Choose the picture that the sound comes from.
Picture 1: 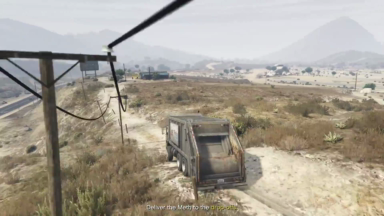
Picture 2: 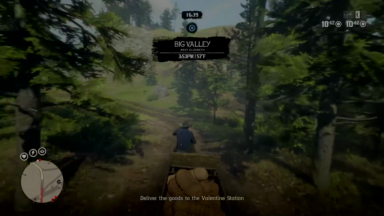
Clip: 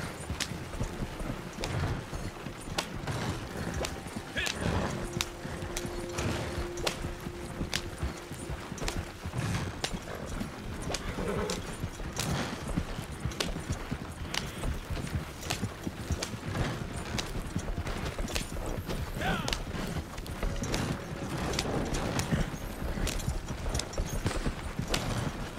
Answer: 2